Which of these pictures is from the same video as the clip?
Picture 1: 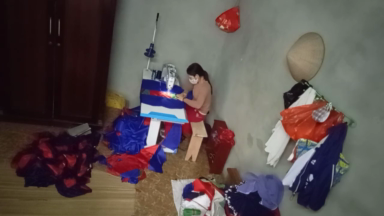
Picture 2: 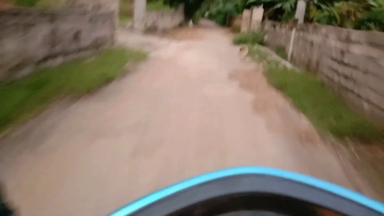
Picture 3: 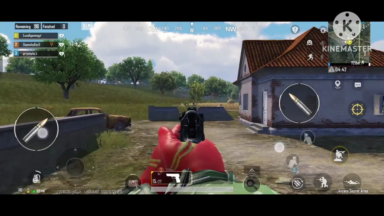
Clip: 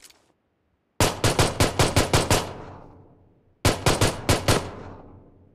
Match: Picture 3